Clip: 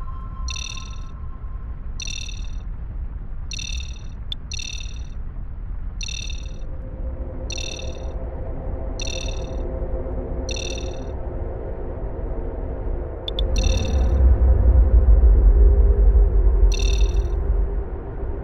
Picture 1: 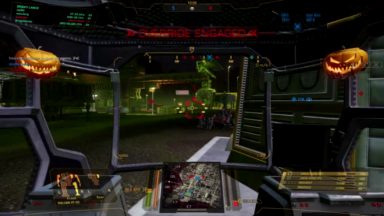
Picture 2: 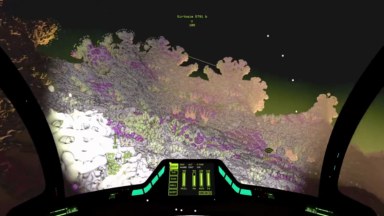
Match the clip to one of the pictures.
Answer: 2